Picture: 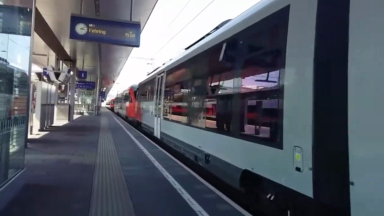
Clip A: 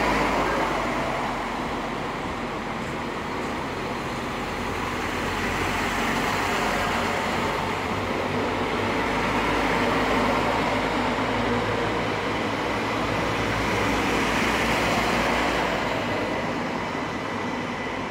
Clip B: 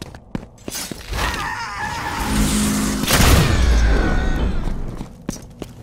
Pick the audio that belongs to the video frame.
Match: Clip A